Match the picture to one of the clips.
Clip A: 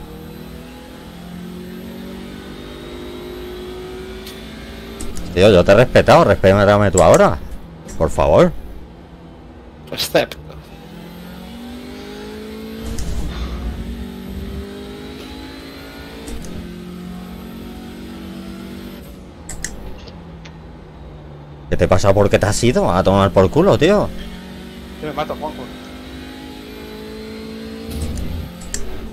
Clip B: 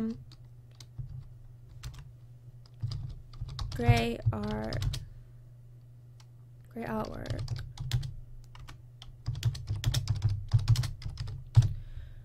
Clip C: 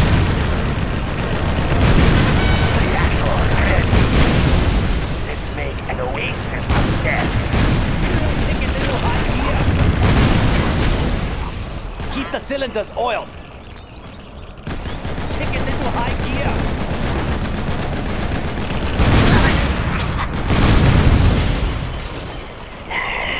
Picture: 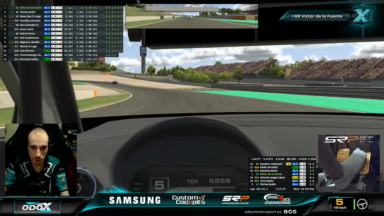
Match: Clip A